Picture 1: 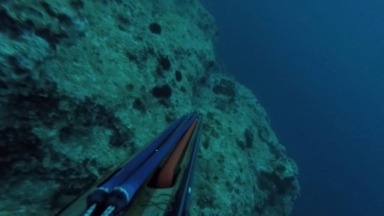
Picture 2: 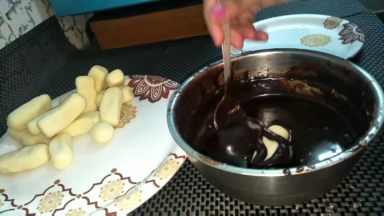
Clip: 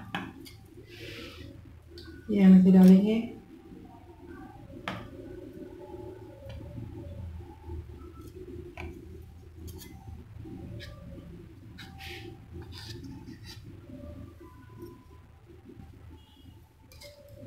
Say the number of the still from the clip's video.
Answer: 2